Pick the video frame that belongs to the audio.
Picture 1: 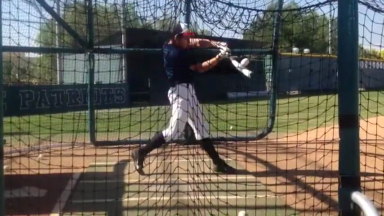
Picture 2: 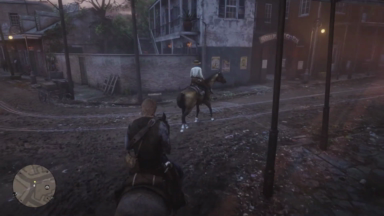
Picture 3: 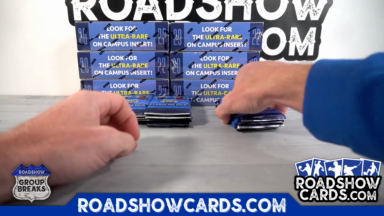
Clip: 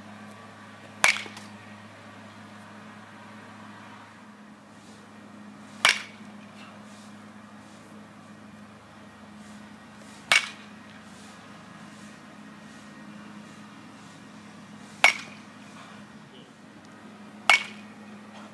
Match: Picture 1